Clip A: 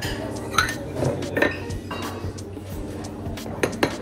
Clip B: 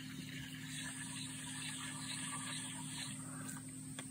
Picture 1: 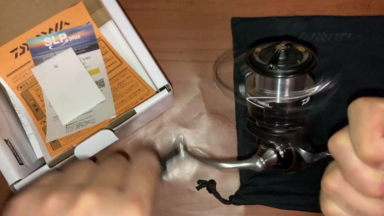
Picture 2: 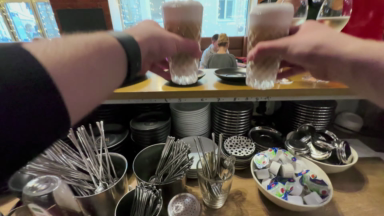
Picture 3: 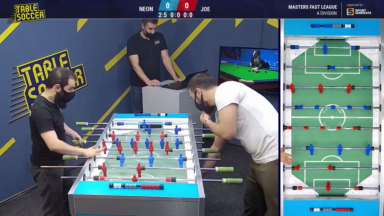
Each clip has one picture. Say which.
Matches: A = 2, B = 1